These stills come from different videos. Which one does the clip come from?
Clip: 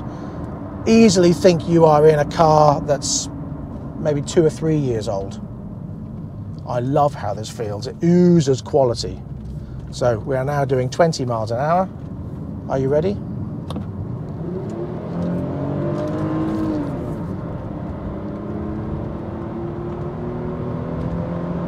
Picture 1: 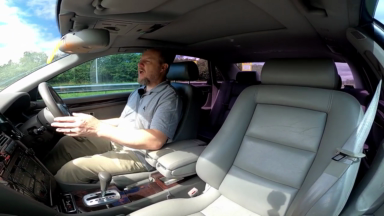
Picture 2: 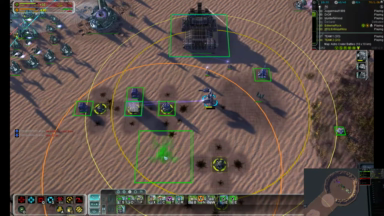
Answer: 1